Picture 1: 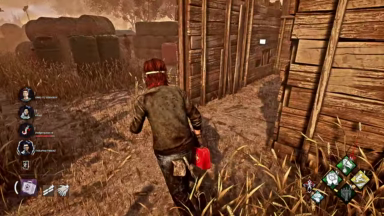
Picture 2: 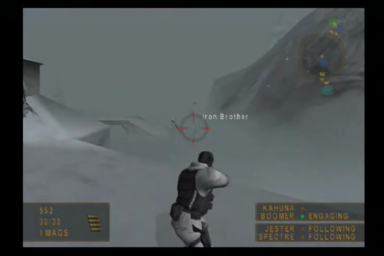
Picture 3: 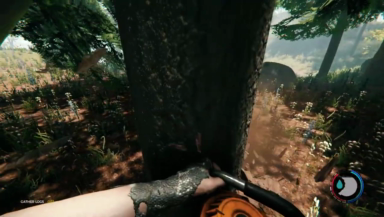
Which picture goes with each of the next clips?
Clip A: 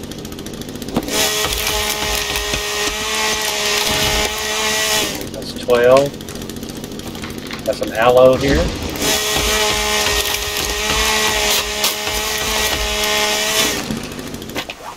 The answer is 3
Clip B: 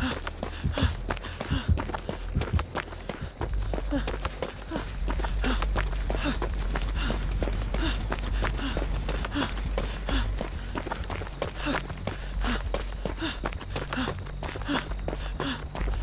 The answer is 1